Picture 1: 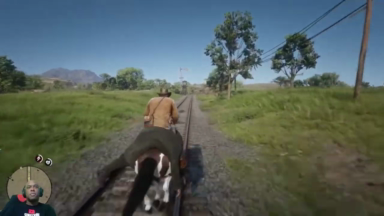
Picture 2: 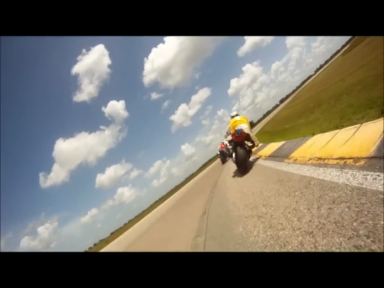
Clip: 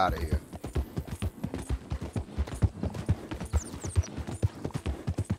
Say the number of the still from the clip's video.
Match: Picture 1